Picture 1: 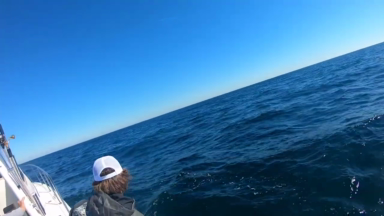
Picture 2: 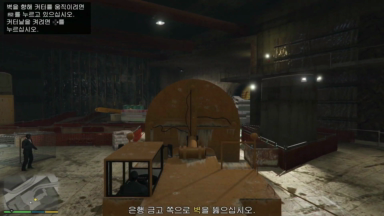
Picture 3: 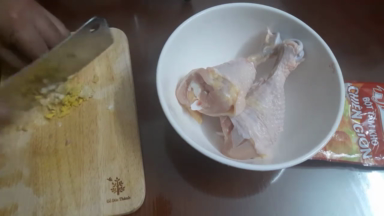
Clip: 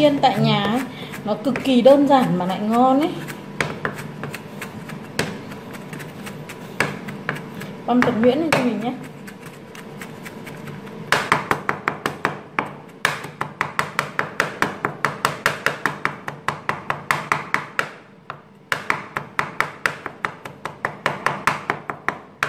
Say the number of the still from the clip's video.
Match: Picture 3